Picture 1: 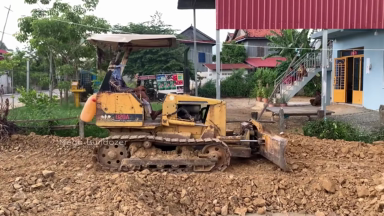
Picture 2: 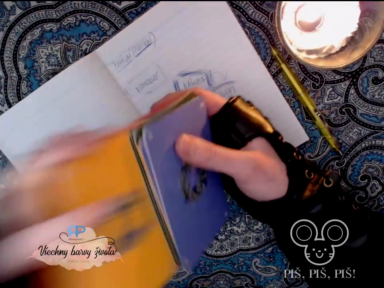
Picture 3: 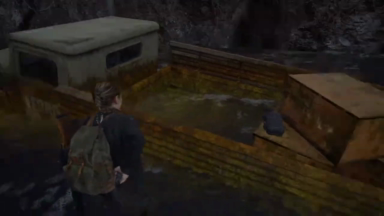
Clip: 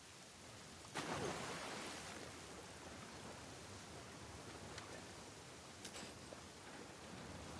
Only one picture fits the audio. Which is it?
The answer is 3